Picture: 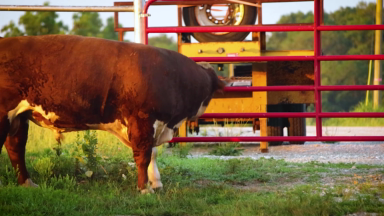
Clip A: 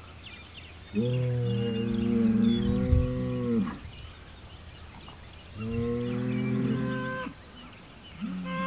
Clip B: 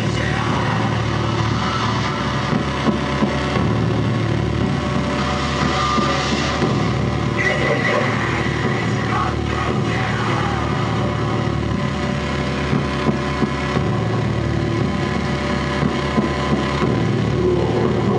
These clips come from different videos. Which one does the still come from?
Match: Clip A